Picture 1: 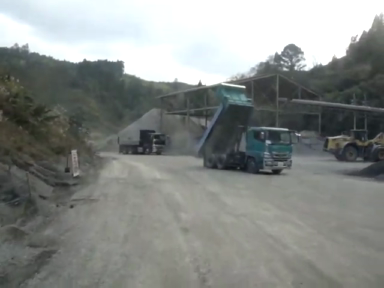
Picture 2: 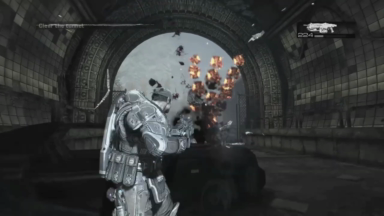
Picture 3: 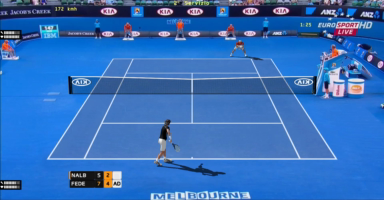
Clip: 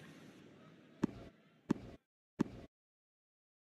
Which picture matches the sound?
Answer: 3